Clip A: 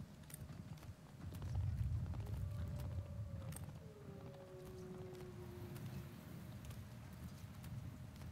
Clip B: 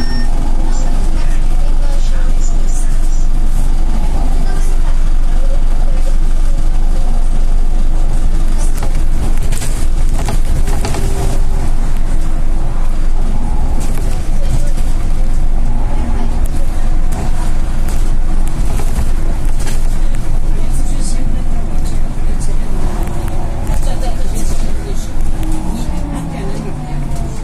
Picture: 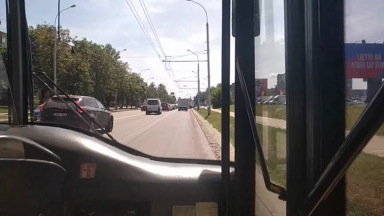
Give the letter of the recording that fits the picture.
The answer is B